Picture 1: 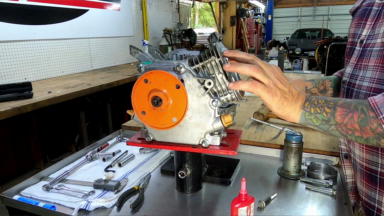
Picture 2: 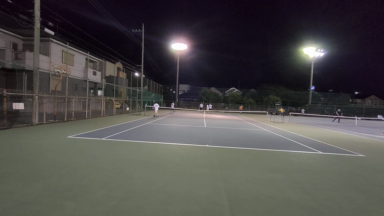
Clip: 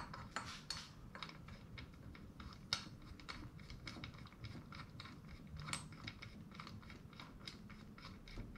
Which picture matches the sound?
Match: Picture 1